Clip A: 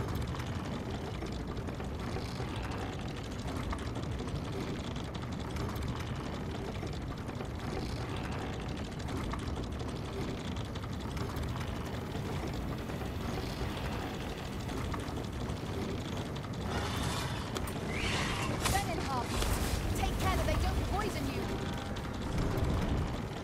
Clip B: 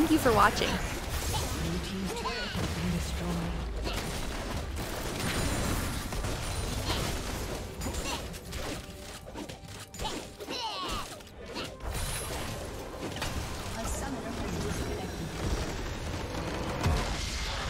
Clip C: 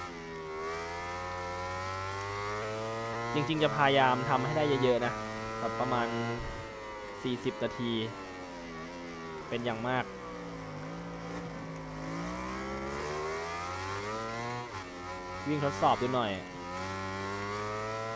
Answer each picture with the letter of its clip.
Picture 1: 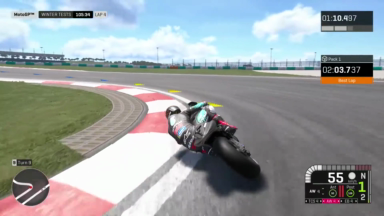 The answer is C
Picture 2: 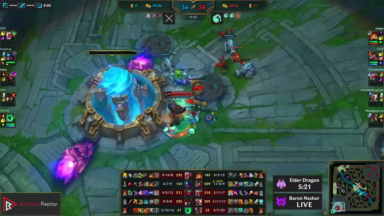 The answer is B